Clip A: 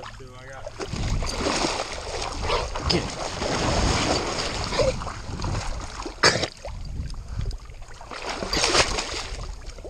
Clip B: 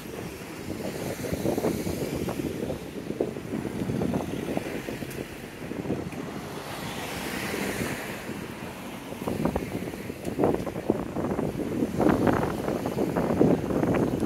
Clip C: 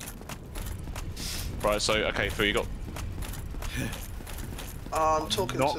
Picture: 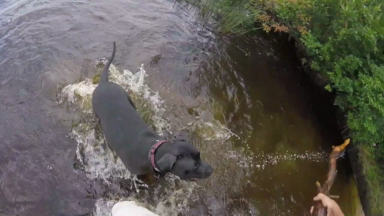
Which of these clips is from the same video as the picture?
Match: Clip A